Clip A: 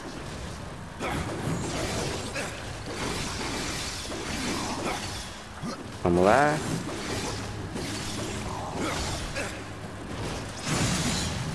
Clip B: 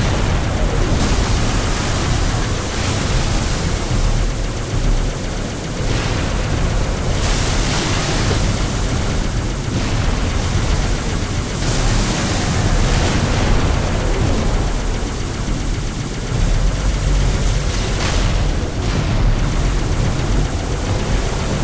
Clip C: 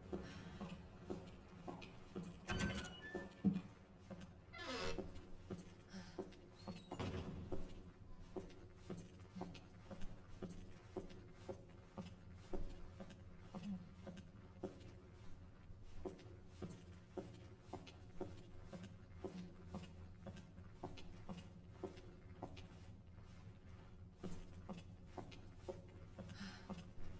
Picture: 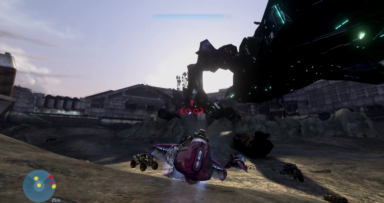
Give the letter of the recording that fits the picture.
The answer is B